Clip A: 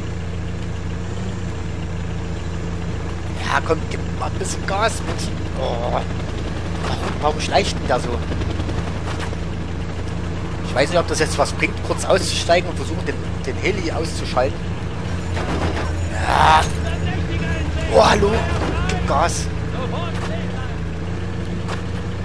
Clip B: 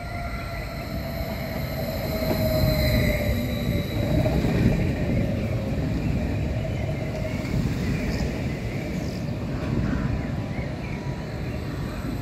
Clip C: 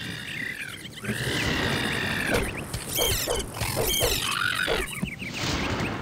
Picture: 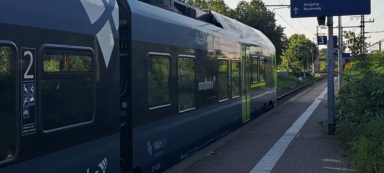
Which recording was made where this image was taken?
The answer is B